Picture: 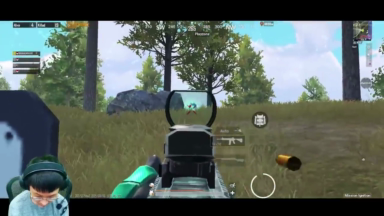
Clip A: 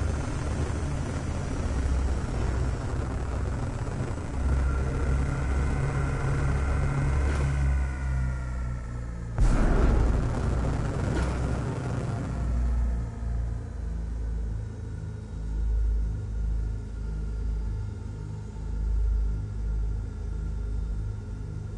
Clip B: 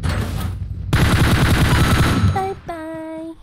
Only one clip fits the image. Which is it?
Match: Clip B